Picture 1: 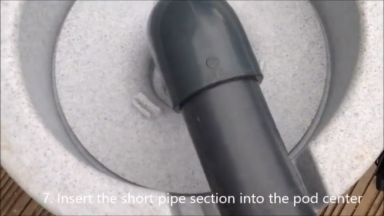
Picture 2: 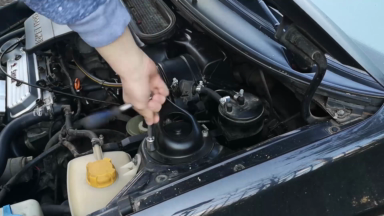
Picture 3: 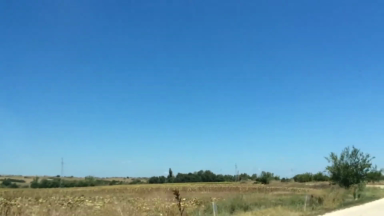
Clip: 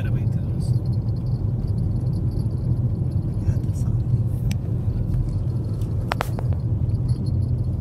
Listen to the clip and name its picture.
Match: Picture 3